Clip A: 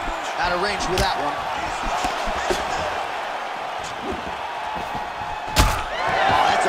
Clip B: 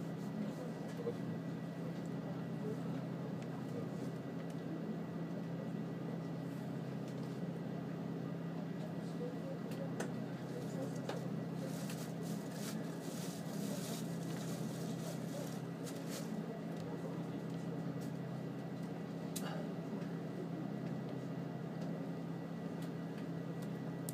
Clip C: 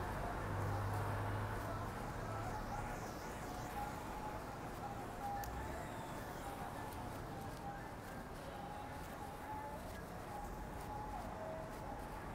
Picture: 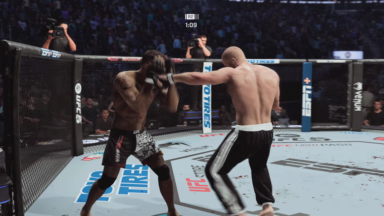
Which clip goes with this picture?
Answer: A